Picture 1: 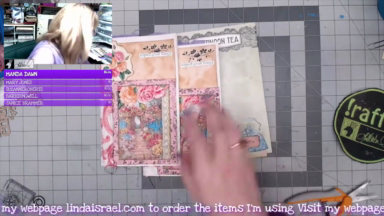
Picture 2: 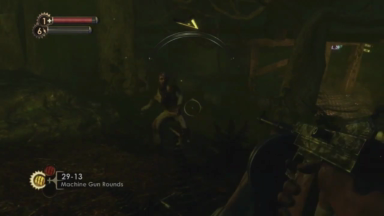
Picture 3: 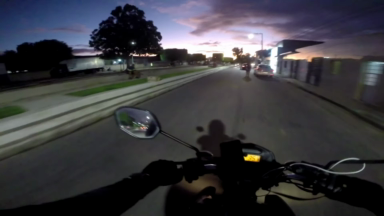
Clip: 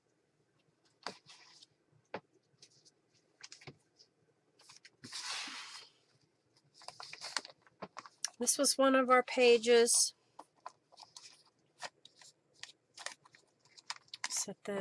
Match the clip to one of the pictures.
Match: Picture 1